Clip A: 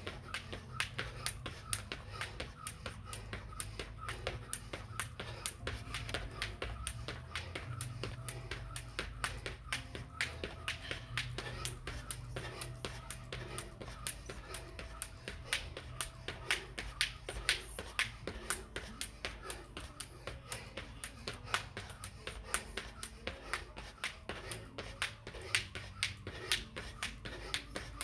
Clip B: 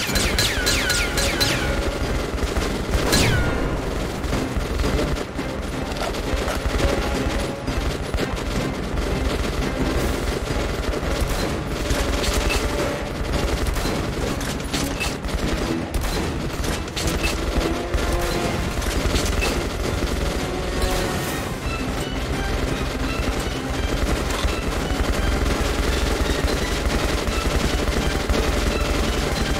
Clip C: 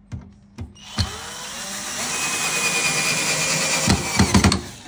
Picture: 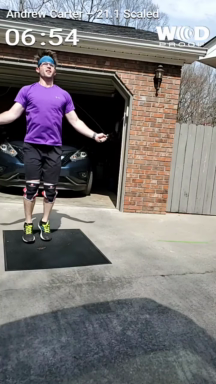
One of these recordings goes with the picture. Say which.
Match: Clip A